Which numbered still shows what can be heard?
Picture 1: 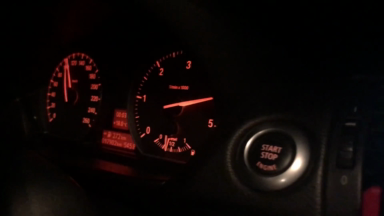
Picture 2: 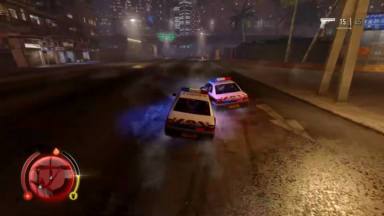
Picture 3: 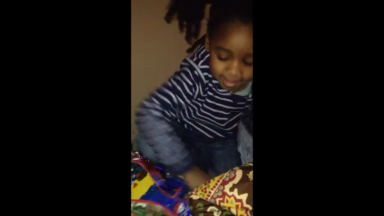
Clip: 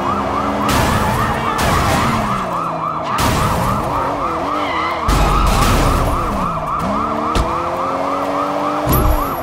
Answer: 2